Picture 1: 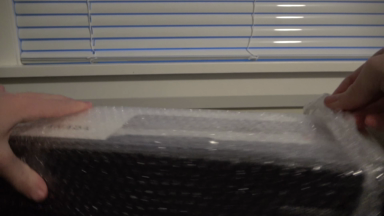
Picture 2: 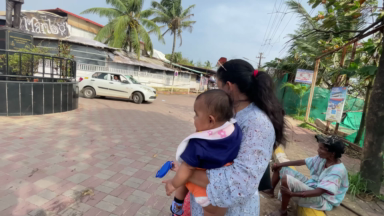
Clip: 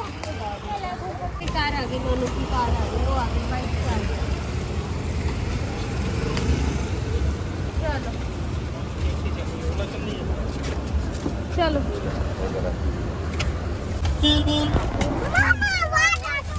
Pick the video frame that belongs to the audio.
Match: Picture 2